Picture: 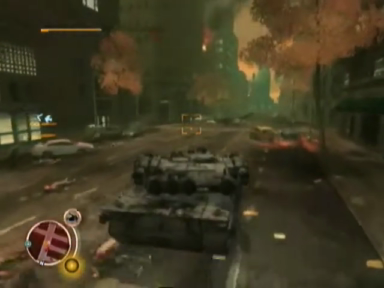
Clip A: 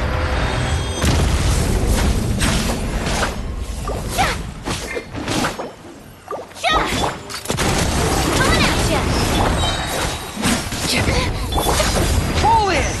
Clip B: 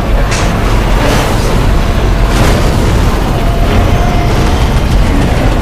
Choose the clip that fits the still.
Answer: B